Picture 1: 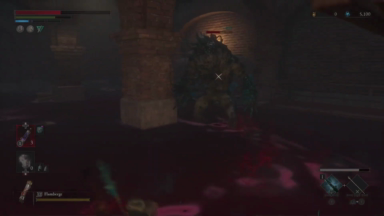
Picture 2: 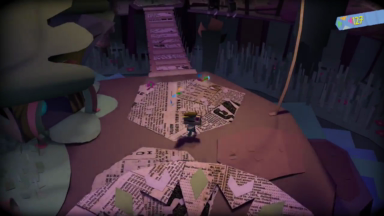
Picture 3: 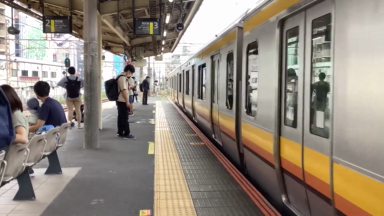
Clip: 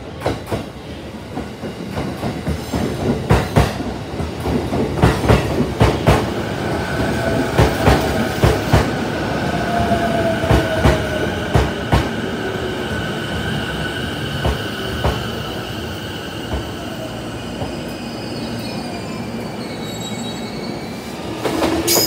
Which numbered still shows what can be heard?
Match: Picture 3